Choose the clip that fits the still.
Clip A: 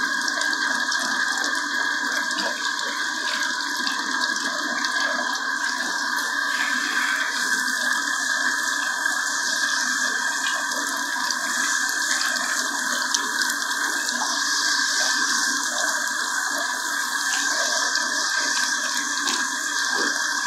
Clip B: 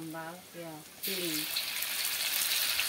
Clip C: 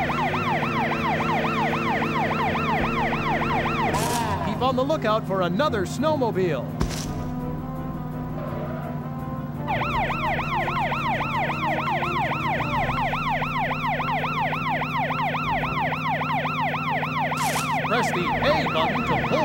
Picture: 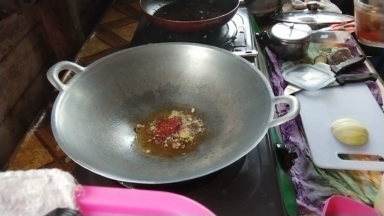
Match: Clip B